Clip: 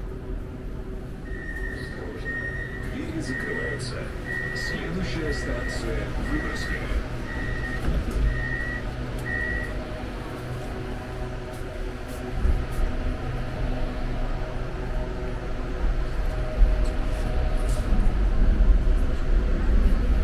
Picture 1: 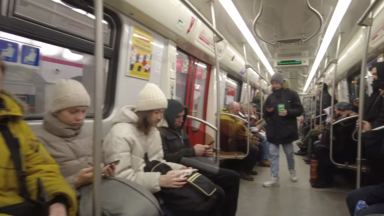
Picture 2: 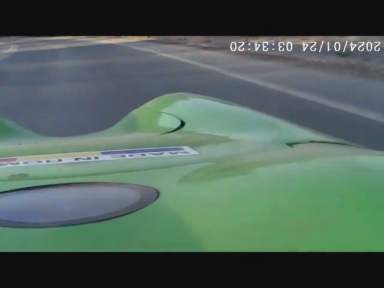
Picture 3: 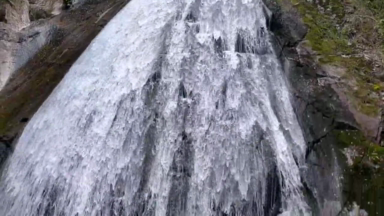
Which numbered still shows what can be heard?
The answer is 1